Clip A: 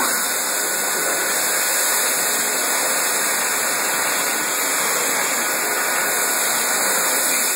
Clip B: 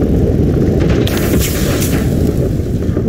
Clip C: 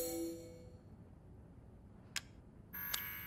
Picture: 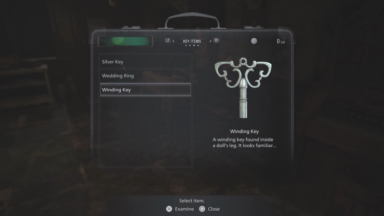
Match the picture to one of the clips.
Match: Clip C